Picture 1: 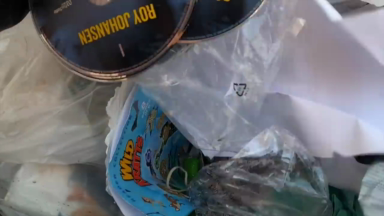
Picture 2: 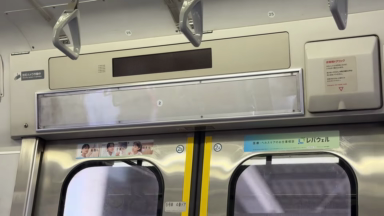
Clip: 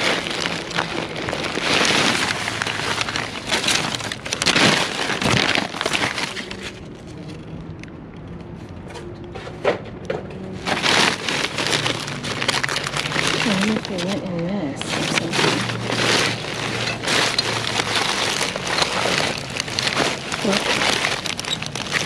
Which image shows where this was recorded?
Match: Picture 1